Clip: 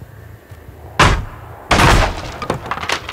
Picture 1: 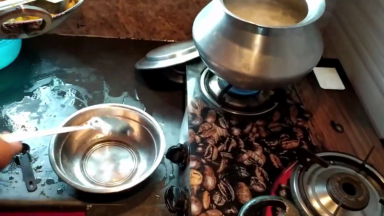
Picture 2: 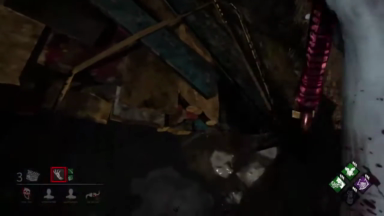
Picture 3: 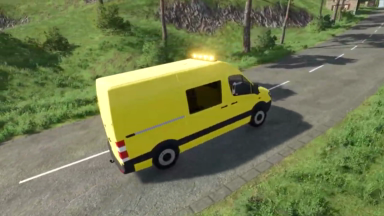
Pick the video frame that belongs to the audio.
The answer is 2